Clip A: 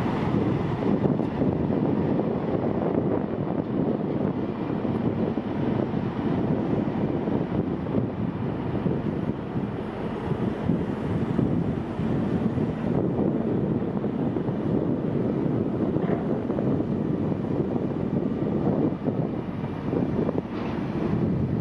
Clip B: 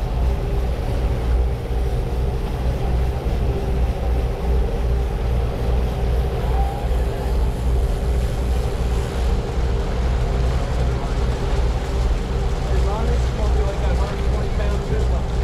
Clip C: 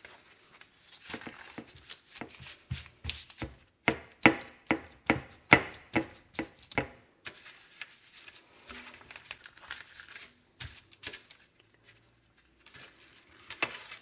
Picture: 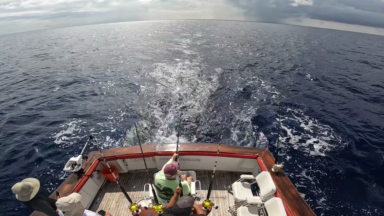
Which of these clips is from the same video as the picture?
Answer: B